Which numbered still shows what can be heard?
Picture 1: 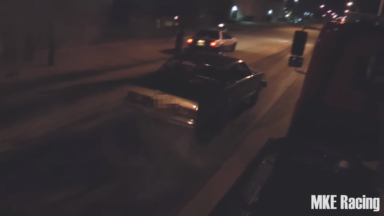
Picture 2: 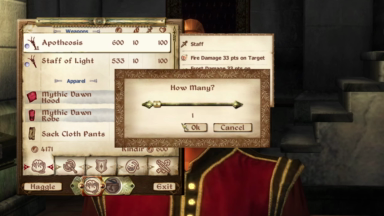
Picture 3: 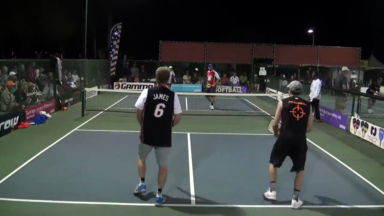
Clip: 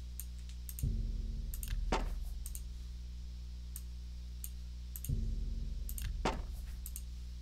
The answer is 2